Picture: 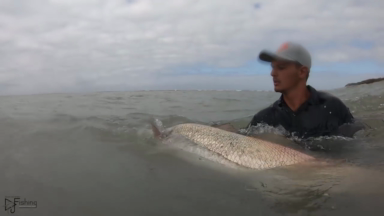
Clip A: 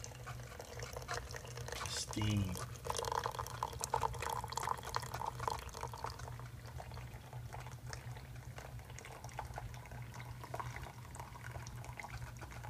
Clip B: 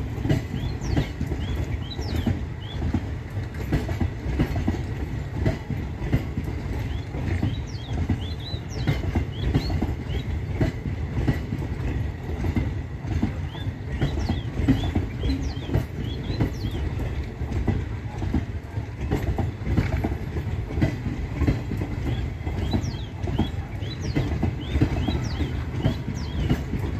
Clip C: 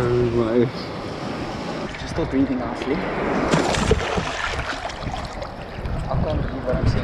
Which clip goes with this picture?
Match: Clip C